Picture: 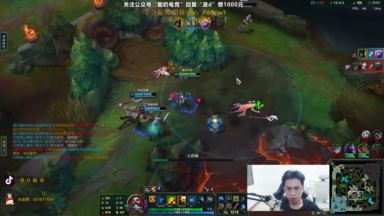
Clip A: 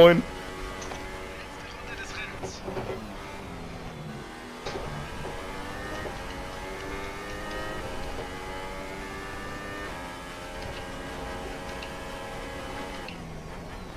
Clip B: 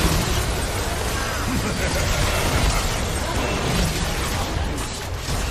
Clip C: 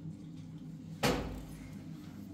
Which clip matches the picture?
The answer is B